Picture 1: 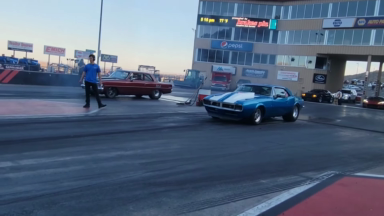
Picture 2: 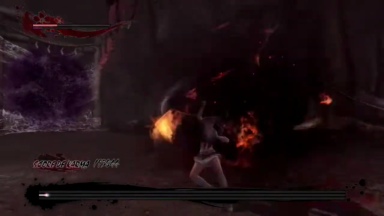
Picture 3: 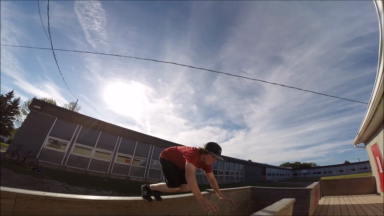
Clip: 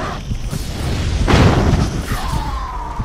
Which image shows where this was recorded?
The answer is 2